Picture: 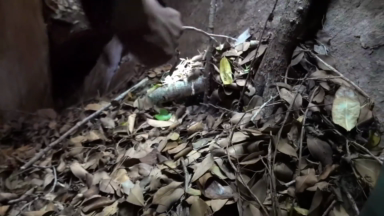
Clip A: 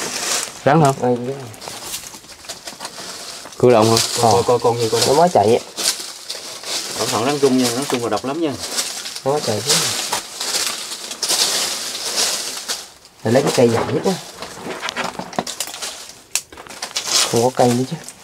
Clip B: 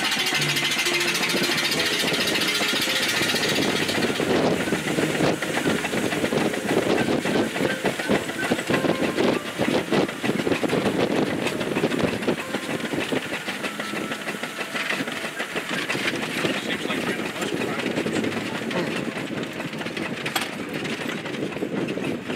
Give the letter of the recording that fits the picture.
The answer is A